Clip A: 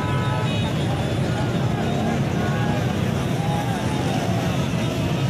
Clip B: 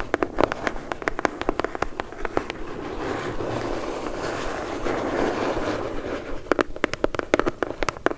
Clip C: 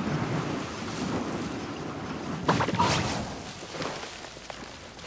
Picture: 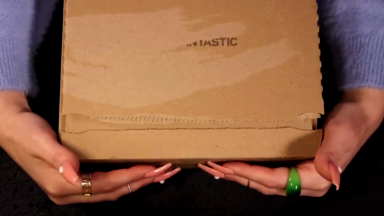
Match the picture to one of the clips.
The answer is B